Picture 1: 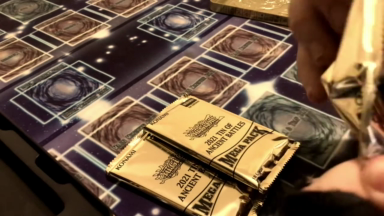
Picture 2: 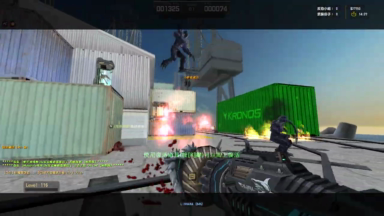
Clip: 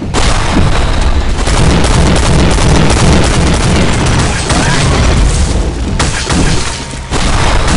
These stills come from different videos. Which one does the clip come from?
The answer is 2